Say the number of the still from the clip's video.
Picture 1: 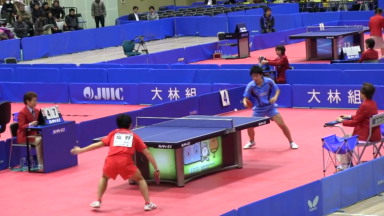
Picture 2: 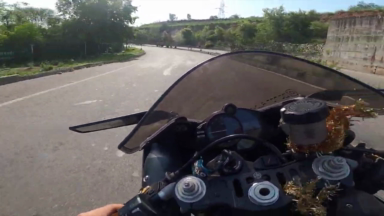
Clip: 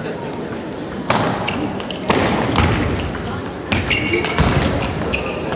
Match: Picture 1